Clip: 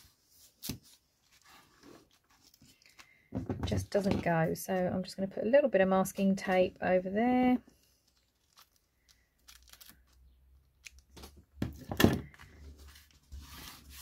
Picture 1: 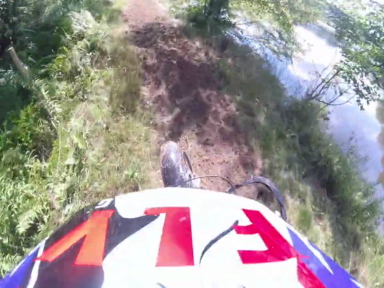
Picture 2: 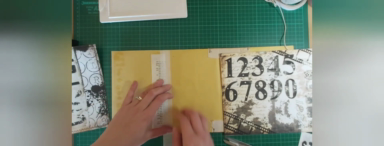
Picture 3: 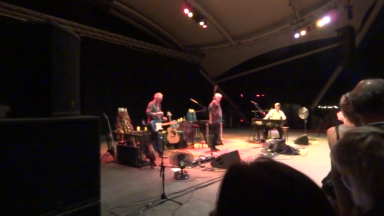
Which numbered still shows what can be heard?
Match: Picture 2